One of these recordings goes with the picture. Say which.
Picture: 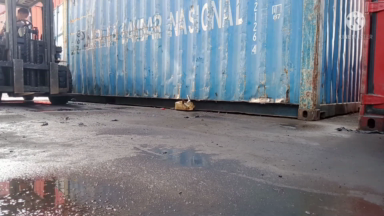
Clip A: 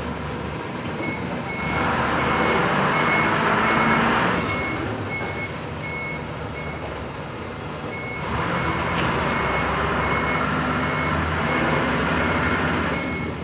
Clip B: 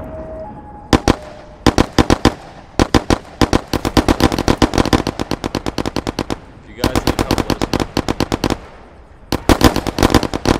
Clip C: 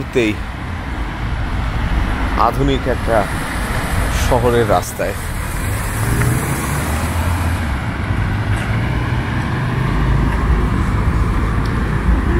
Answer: A